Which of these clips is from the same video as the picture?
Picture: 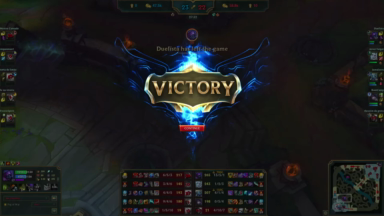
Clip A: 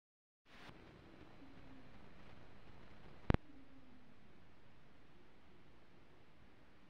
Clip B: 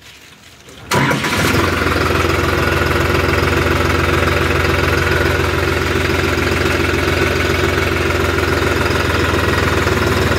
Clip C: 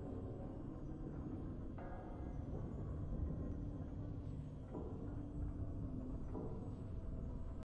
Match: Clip C